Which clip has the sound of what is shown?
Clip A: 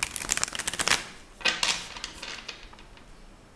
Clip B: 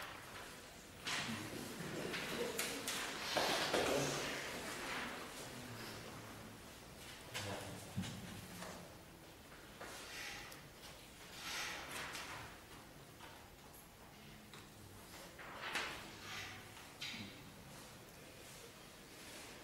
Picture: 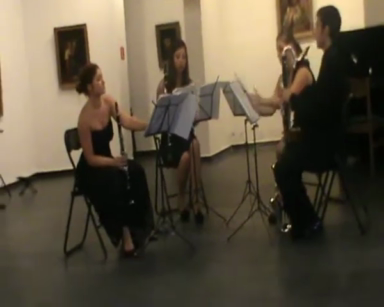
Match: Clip B